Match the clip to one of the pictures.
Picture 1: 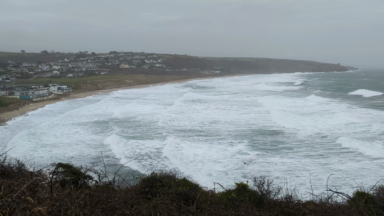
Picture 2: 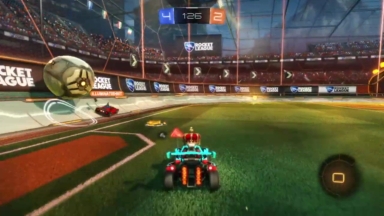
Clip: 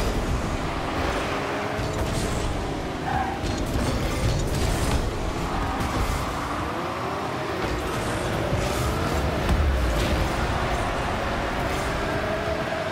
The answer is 2